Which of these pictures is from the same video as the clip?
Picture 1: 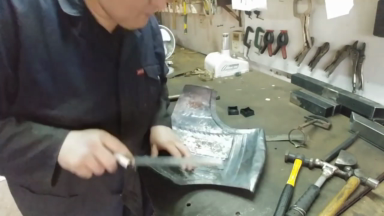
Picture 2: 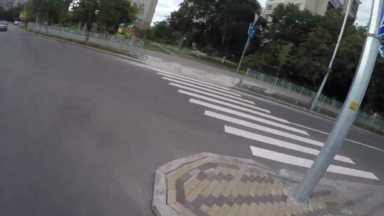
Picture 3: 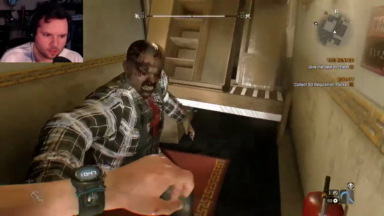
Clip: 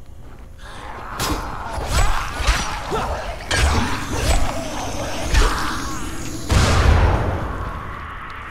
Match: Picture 3